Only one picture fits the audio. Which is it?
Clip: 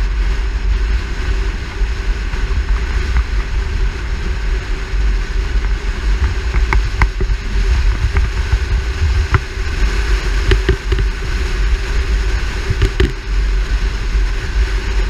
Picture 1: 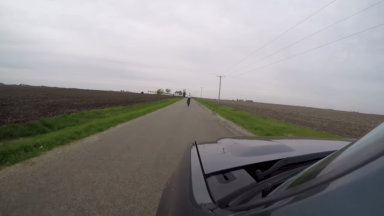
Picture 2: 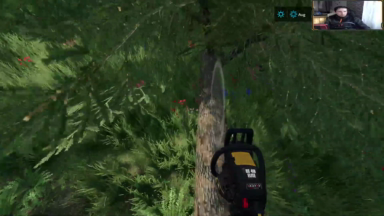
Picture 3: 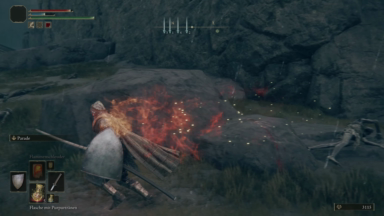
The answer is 1